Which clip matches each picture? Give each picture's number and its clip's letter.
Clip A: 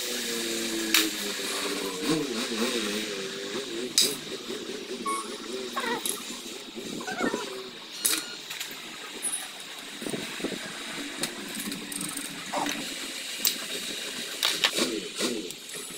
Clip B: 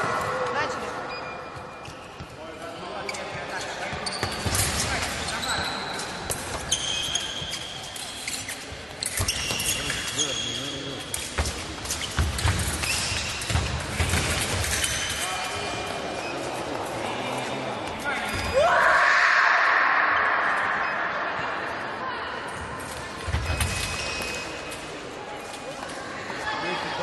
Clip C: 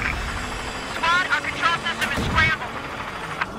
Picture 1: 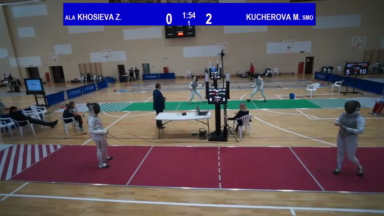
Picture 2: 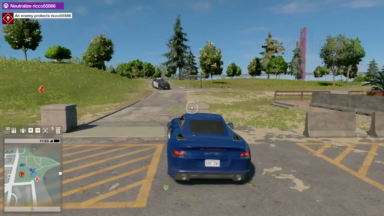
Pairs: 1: B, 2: C